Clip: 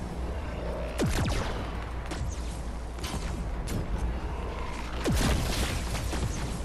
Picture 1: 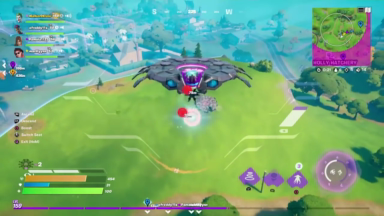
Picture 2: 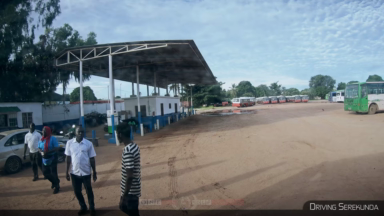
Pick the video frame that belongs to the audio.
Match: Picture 1